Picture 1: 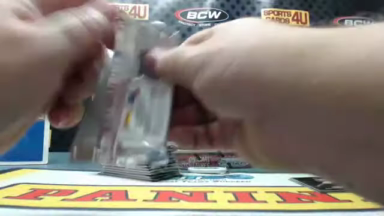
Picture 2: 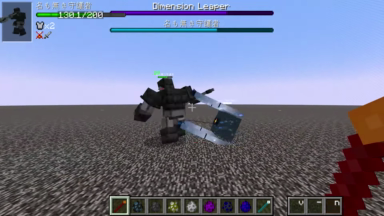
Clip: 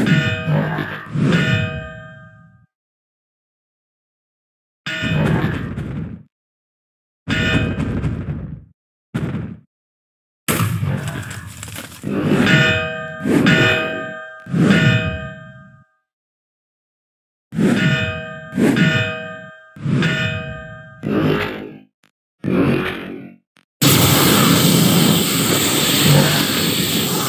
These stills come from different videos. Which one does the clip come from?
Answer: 2